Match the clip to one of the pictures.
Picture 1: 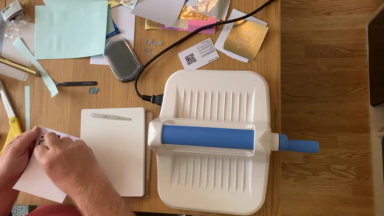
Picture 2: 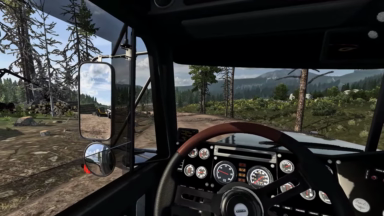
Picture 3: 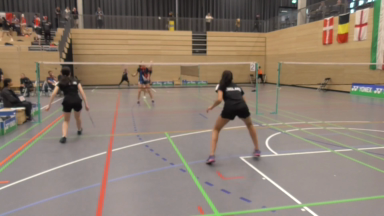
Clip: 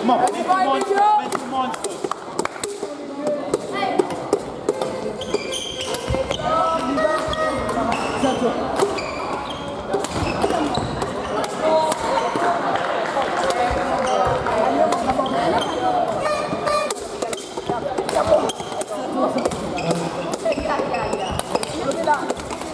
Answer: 3